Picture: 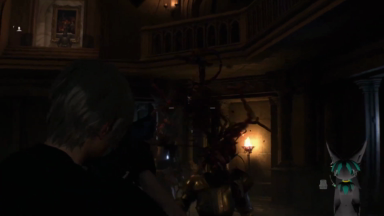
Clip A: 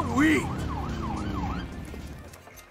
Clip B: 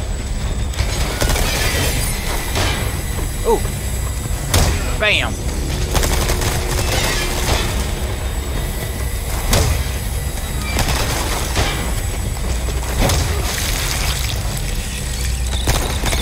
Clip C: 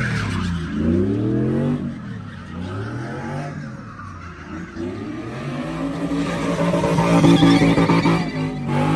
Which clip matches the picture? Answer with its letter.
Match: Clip B